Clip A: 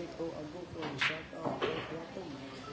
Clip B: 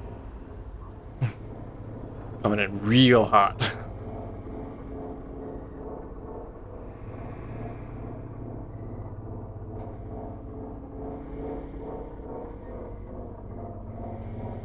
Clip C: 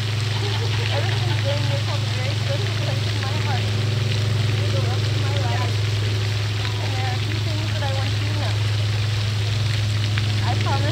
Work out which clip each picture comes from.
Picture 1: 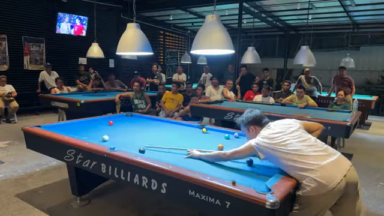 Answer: A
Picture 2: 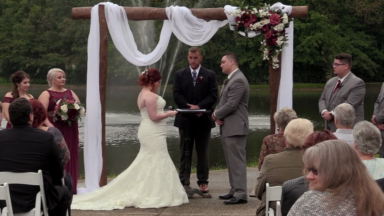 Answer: C